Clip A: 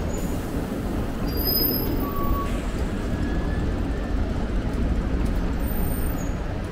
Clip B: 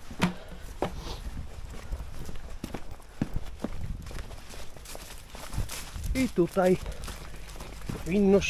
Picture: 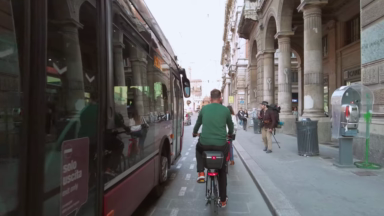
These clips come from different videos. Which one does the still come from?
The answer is A